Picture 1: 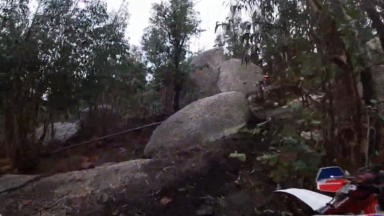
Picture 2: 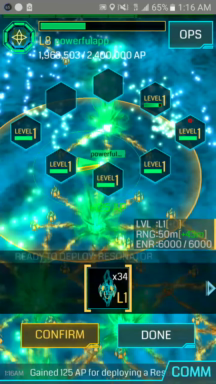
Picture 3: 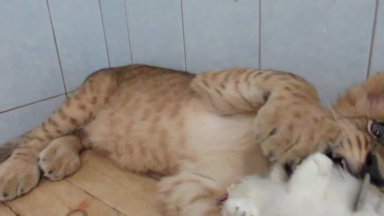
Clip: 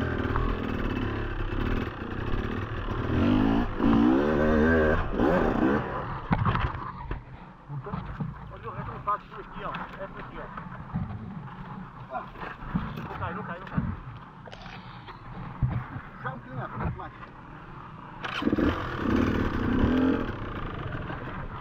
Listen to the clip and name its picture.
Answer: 1